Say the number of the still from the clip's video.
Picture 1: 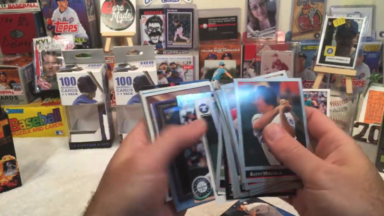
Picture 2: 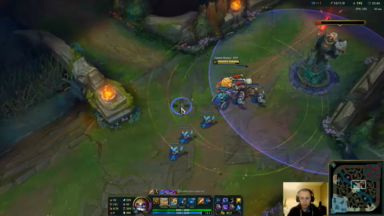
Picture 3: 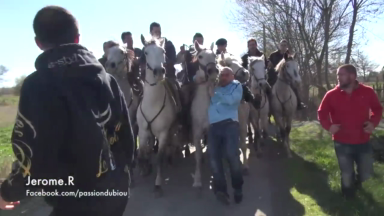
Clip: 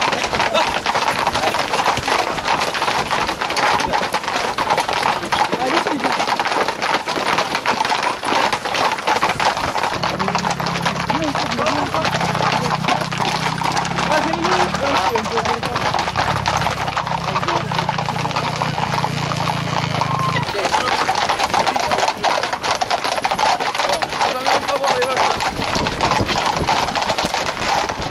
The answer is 3